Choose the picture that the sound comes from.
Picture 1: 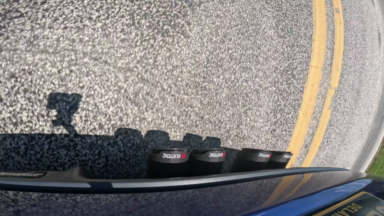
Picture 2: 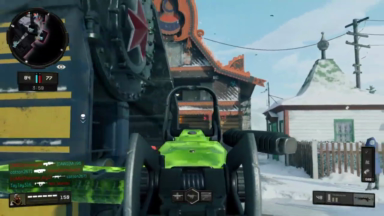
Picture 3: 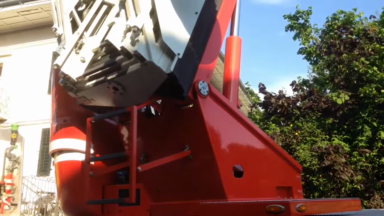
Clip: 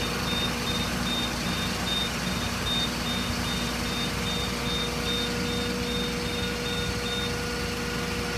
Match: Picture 3